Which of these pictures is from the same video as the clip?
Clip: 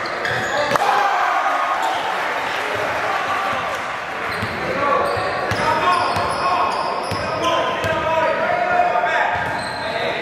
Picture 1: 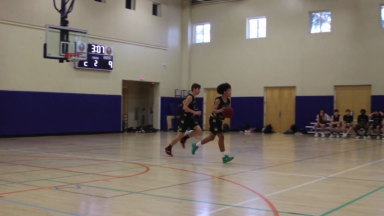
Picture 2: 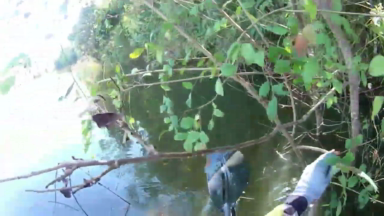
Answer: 1